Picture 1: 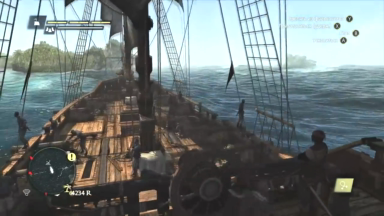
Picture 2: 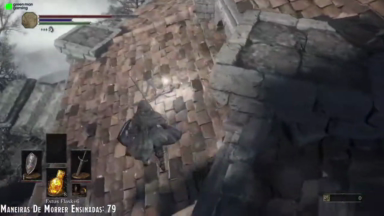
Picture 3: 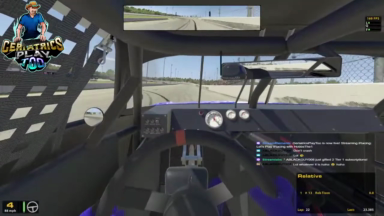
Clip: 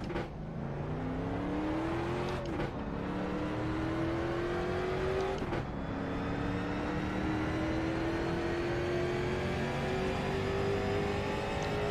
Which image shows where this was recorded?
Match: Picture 3